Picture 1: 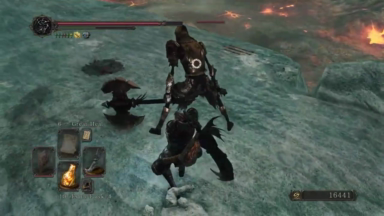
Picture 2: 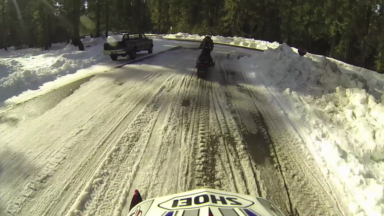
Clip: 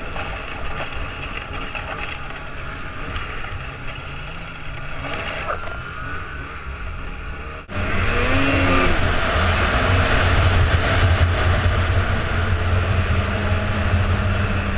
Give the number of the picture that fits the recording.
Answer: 2